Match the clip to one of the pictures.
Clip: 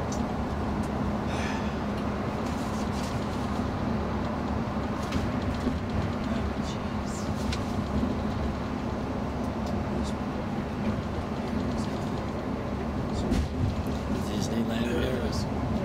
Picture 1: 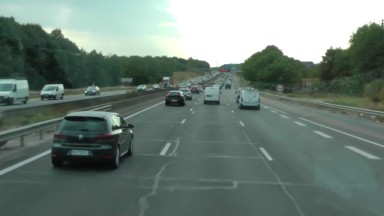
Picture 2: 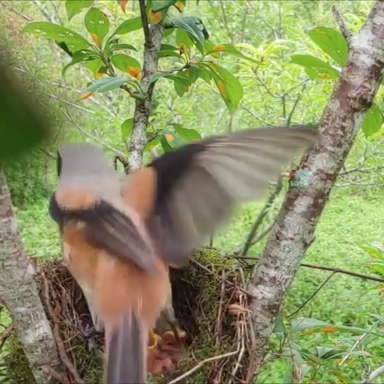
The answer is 1